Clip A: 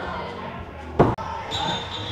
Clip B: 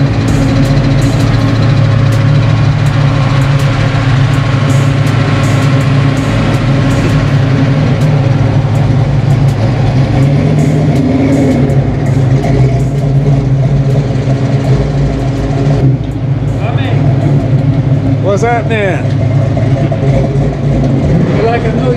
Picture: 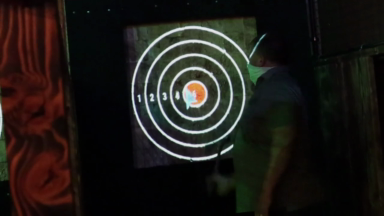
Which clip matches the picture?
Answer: A